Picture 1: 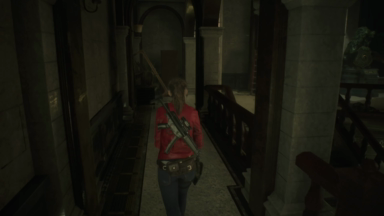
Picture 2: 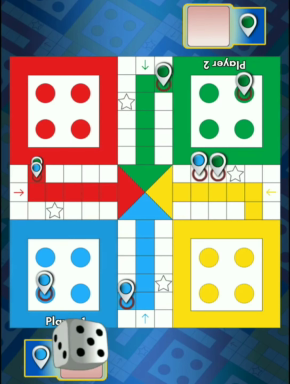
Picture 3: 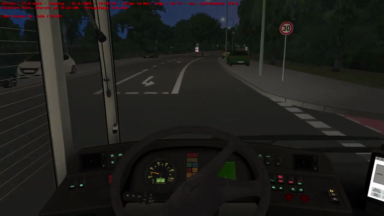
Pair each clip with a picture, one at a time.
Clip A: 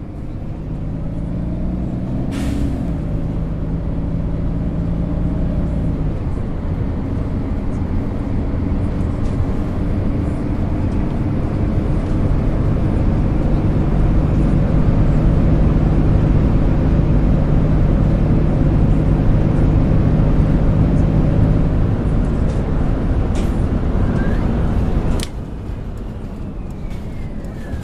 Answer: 3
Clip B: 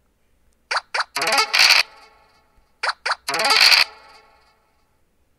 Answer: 2